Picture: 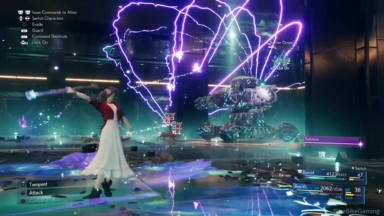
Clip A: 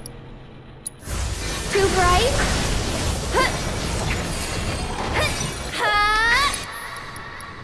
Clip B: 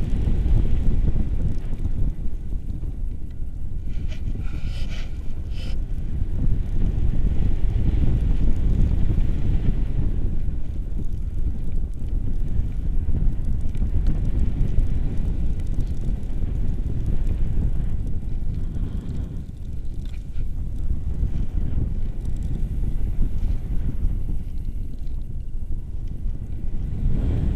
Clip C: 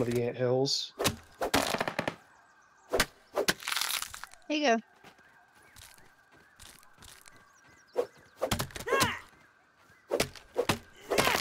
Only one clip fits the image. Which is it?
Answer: A